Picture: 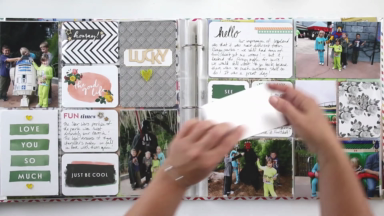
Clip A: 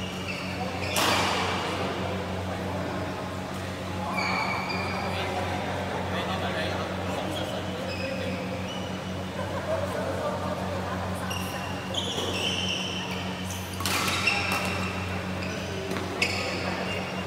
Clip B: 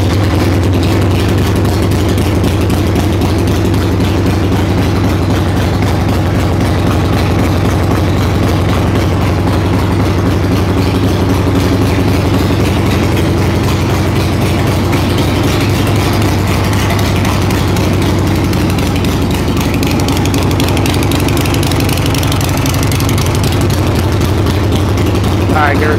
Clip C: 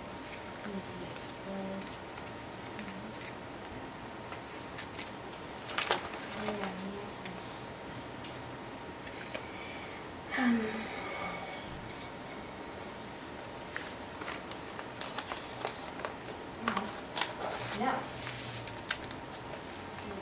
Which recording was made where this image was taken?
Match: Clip C